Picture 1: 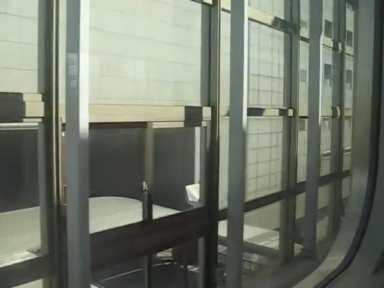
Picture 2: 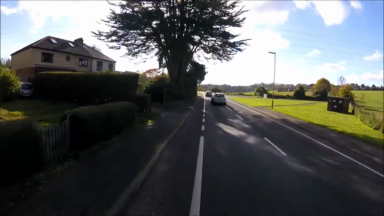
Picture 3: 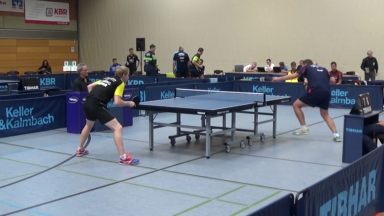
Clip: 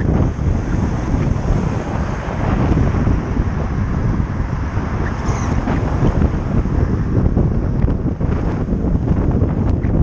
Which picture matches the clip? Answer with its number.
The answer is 2